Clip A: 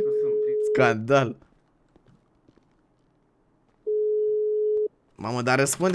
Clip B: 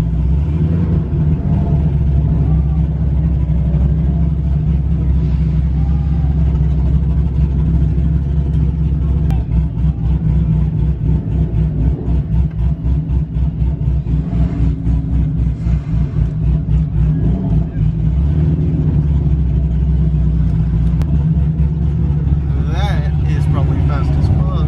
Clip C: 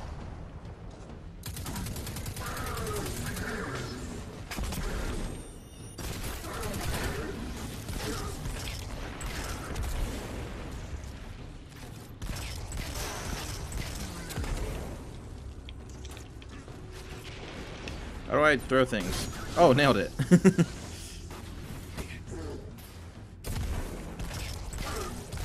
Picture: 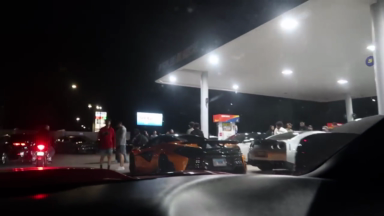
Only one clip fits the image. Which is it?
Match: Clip B